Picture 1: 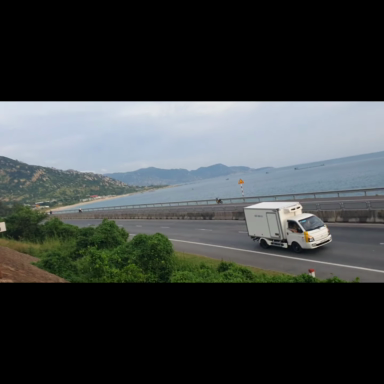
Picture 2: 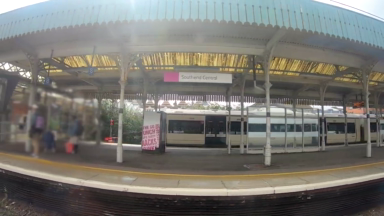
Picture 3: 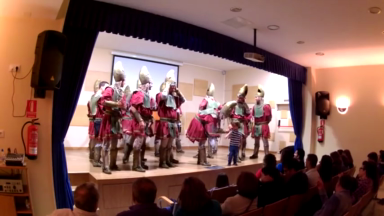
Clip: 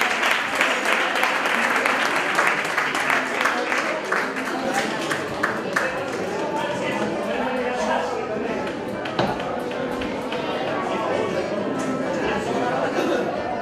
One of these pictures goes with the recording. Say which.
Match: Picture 3